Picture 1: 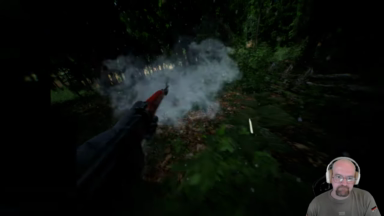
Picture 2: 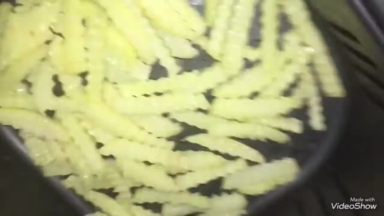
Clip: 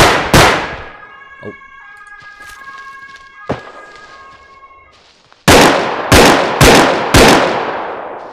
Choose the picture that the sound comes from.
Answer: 1